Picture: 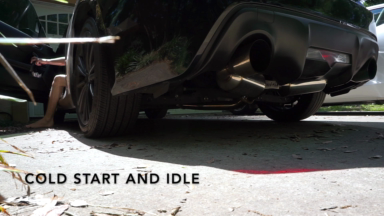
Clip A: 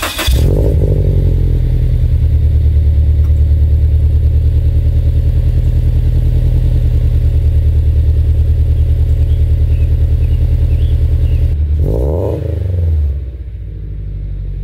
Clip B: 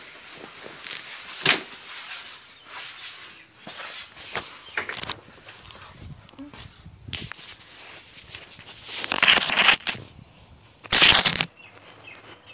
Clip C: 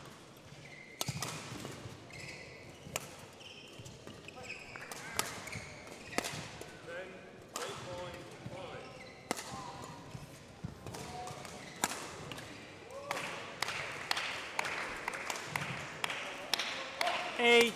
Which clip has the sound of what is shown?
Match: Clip A